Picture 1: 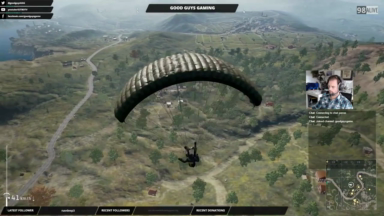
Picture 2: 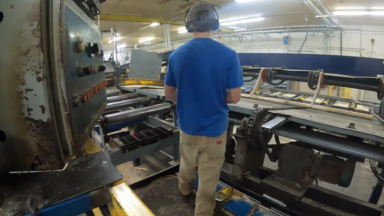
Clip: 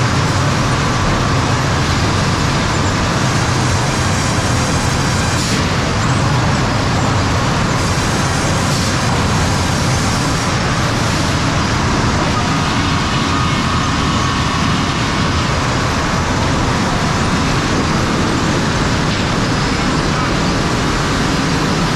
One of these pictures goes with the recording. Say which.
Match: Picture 2